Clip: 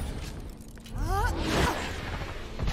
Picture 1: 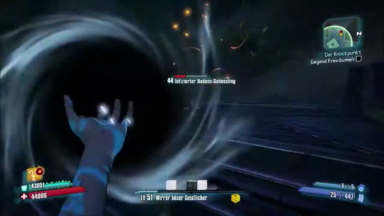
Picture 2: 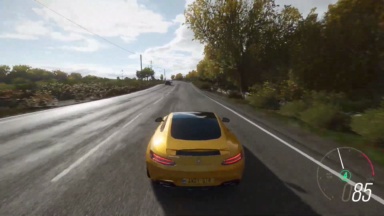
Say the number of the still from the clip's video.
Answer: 1